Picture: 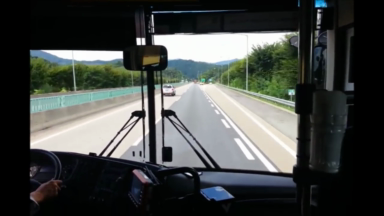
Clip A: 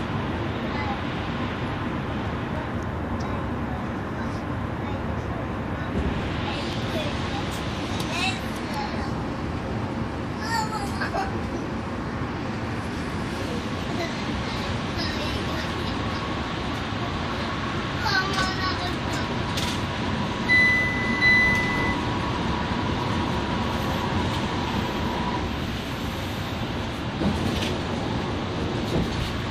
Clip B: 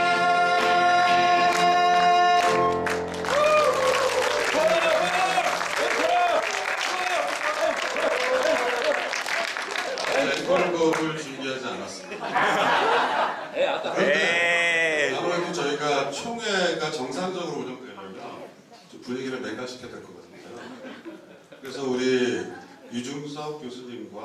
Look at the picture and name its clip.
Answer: A